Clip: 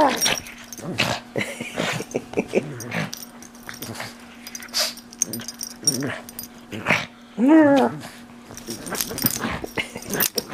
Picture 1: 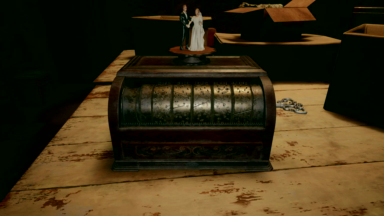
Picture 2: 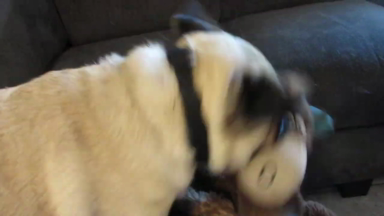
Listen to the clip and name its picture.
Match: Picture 2